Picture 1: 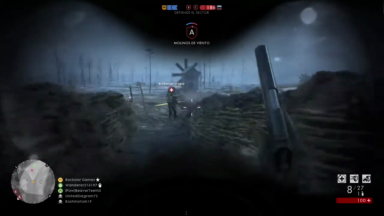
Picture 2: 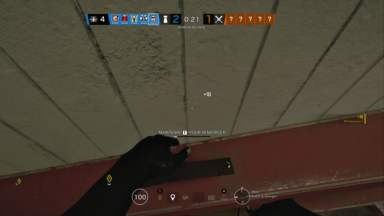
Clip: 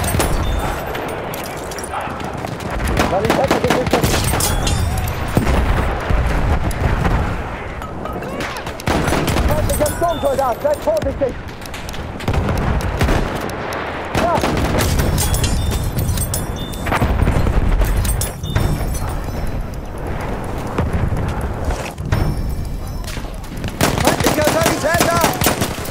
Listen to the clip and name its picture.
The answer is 1